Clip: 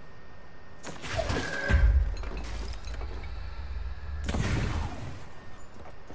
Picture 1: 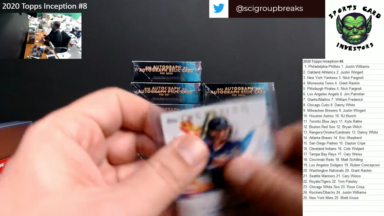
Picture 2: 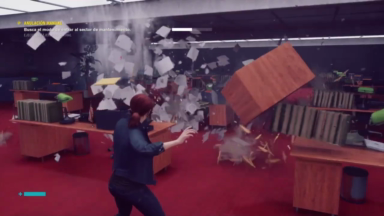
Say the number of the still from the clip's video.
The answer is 2